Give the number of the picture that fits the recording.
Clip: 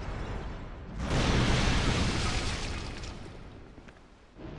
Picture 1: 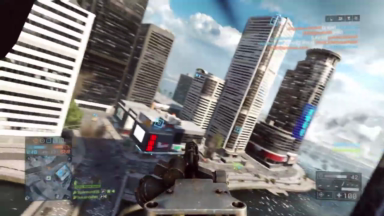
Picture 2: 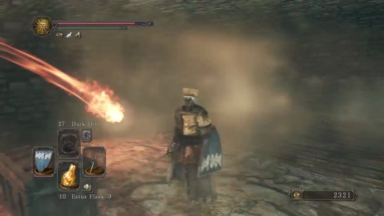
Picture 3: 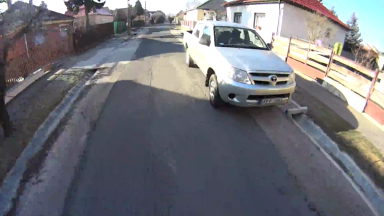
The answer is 2